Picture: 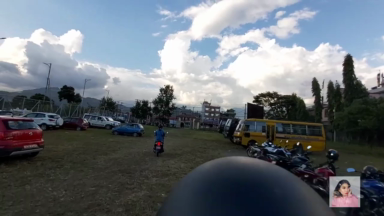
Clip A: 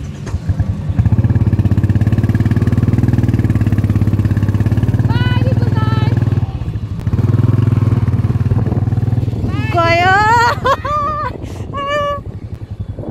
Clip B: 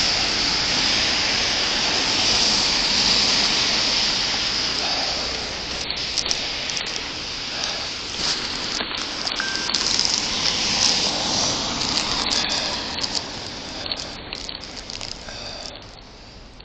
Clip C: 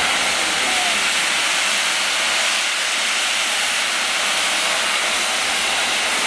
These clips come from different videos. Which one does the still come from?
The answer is A